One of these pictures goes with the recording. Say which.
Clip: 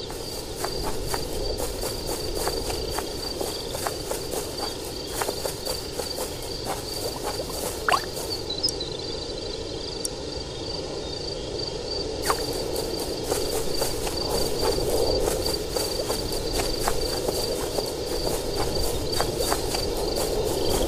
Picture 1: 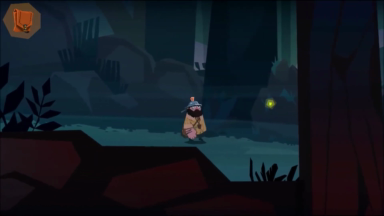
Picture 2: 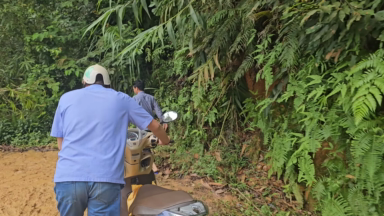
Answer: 1